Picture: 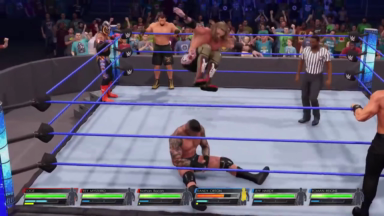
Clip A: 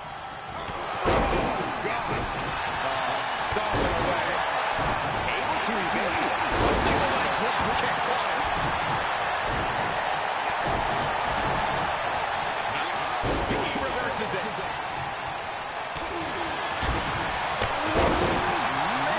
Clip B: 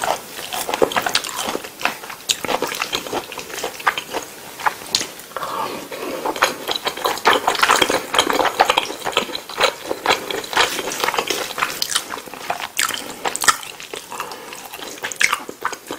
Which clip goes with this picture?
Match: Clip A